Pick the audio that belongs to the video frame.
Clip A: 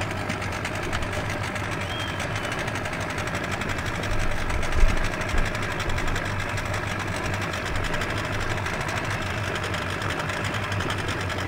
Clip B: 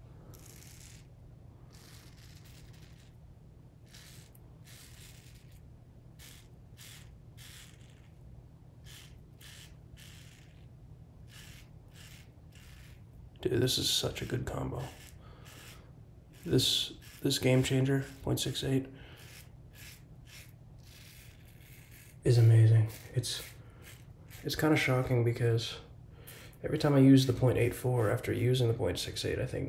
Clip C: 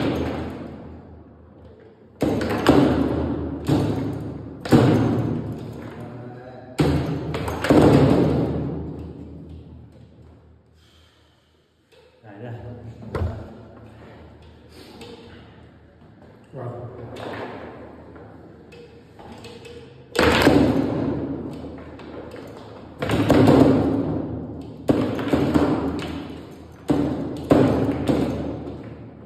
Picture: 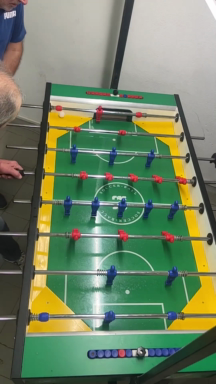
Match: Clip C